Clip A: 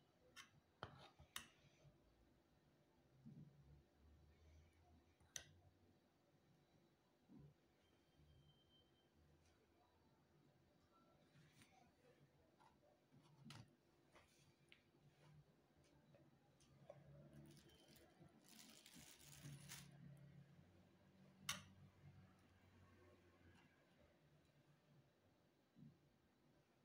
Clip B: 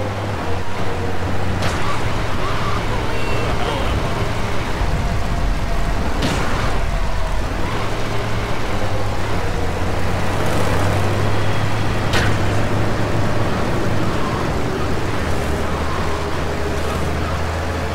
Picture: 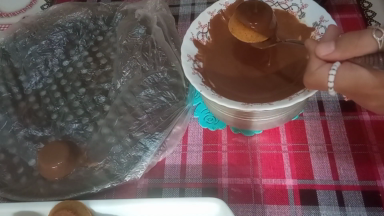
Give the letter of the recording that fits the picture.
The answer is A